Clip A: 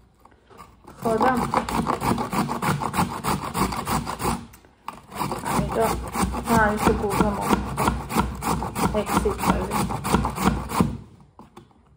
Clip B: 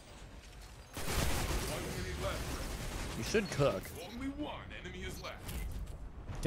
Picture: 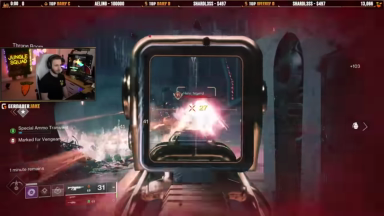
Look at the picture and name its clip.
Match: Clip B